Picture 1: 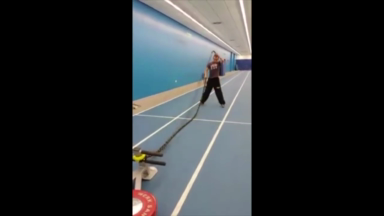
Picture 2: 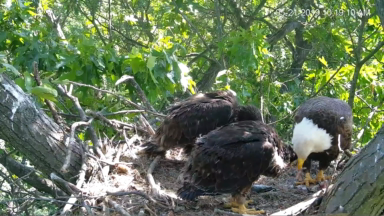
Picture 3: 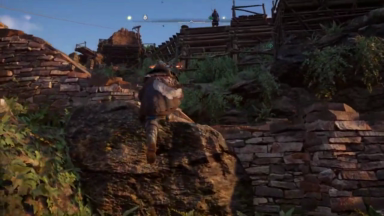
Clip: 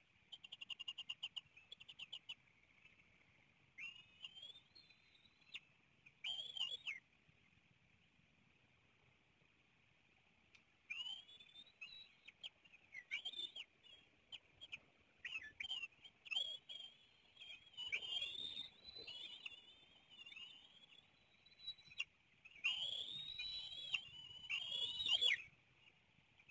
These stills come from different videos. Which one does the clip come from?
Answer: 2